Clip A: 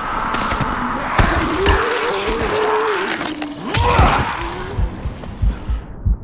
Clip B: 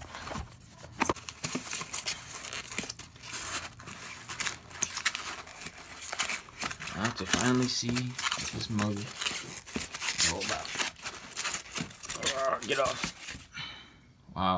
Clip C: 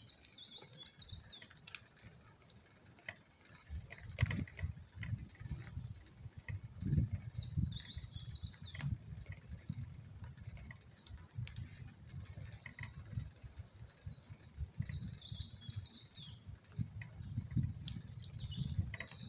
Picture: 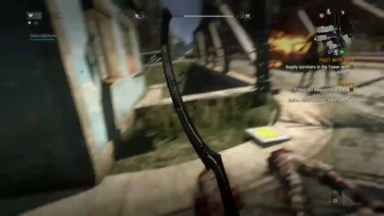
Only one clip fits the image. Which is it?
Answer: A